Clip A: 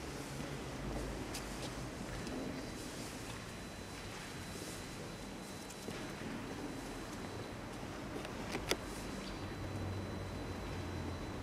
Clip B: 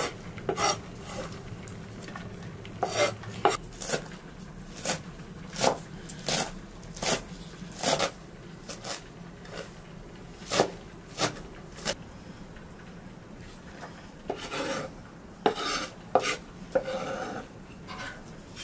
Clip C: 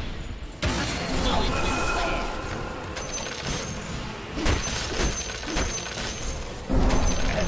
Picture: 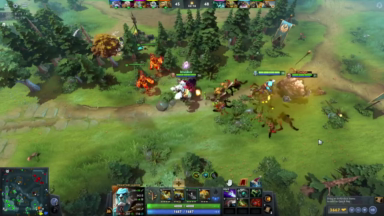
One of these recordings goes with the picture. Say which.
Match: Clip C